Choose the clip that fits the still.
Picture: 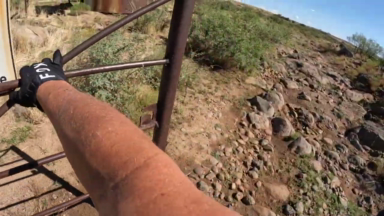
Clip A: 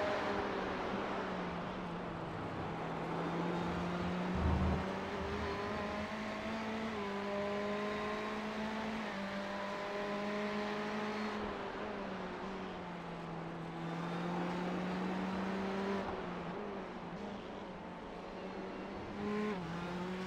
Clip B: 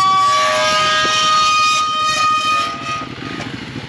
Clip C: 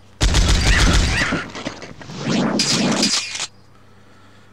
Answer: B